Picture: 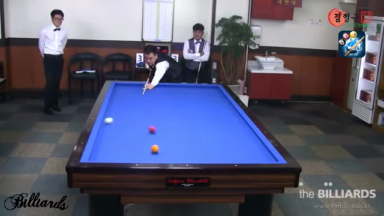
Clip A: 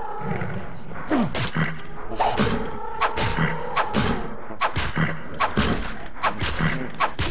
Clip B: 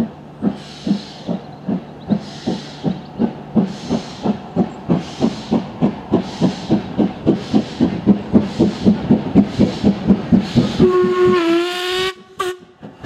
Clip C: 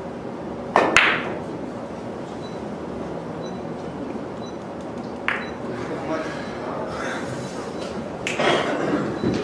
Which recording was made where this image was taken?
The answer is C